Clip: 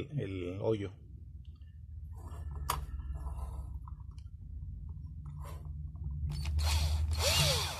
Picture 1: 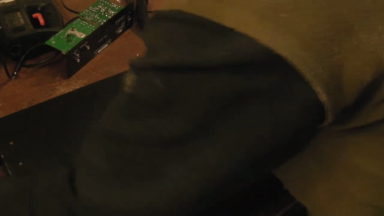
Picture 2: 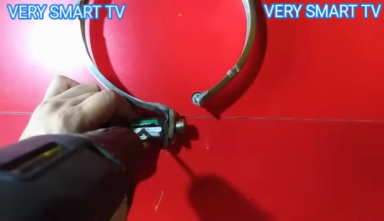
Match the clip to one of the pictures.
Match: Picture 2